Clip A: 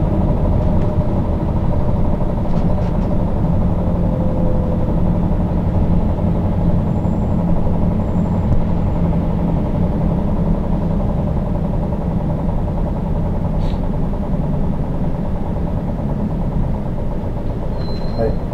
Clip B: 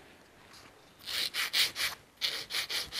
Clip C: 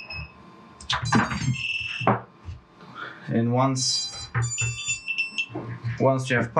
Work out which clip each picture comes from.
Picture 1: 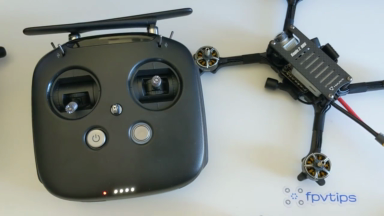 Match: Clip C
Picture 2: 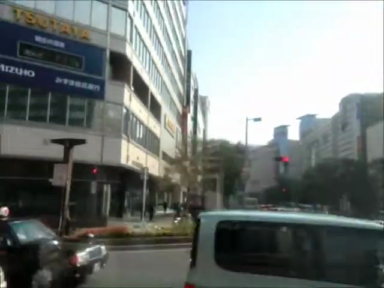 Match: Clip A